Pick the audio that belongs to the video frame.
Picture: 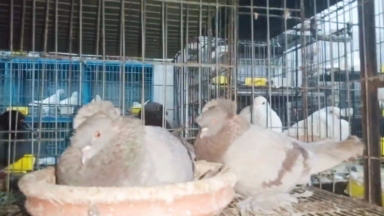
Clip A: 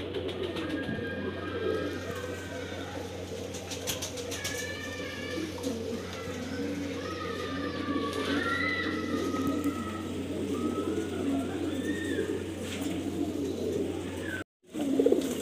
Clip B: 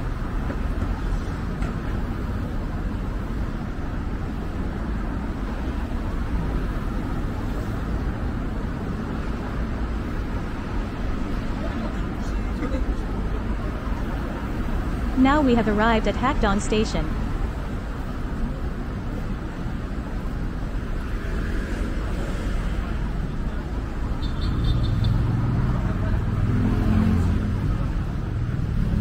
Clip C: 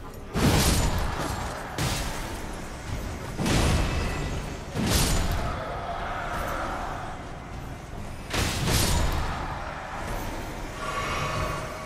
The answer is A